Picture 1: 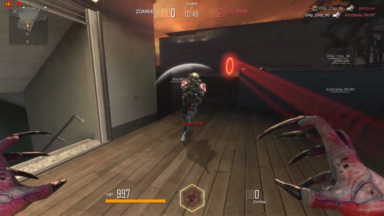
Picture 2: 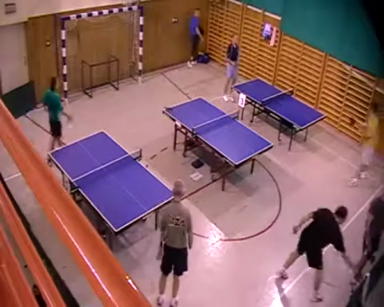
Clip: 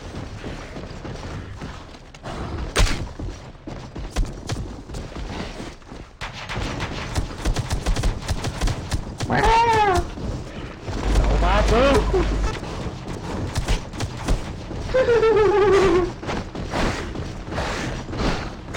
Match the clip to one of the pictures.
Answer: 1